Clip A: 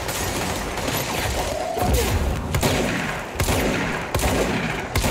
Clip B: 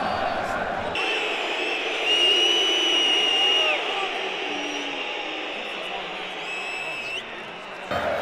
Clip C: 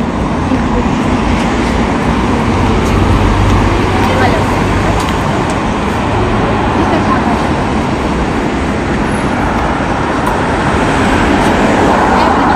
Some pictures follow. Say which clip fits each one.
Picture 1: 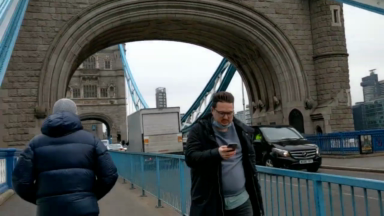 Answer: C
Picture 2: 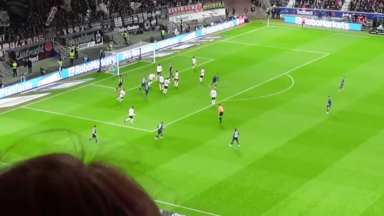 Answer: B